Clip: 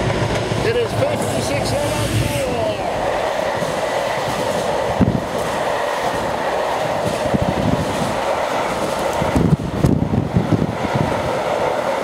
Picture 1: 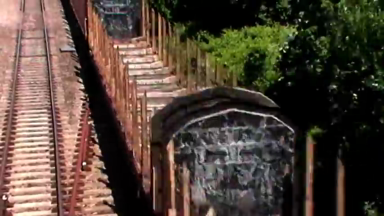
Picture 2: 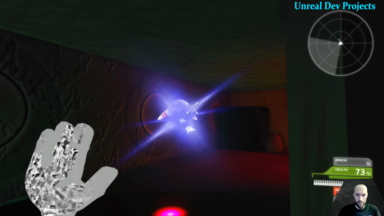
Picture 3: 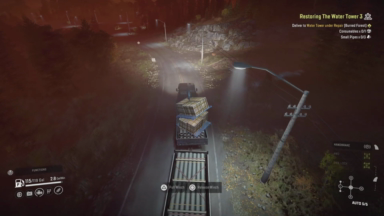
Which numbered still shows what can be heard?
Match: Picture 1